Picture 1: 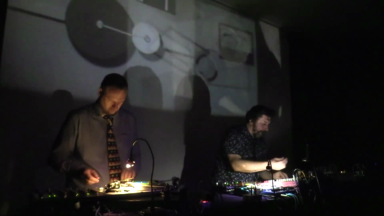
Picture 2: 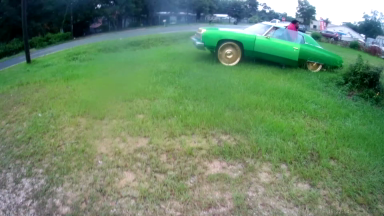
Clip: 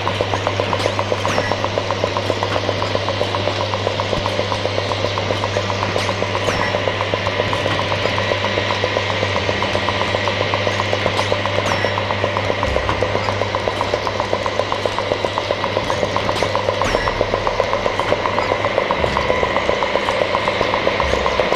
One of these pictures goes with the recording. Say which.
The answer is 1